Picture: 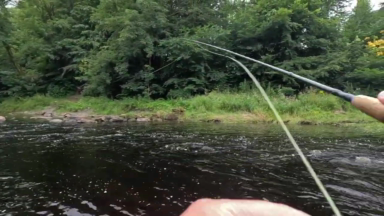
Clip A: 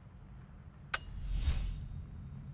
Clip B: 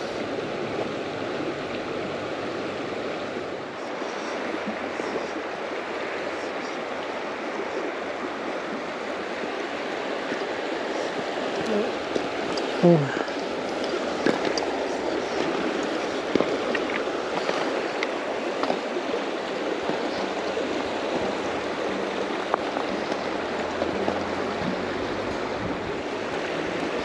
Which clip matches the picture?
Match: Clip B